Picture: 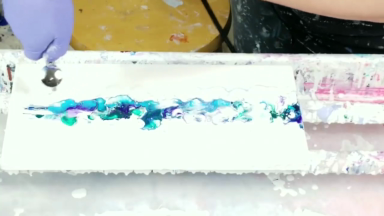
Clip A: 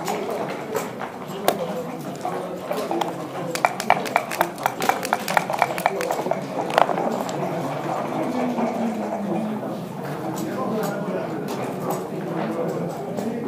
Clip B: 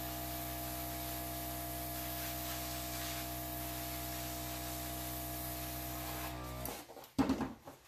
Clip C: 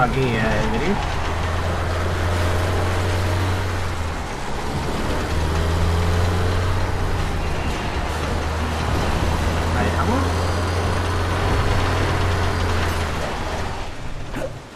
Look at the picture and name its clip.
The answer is B